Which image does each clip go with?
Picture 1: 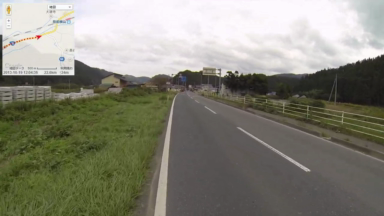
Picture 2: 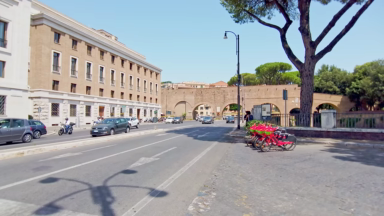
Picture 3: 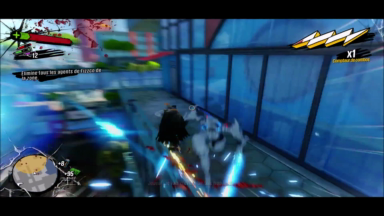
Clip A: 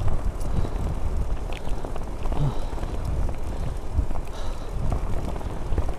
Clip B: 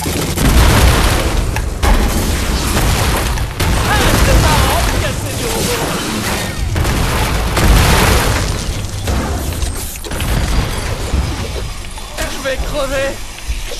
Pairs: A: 1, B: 3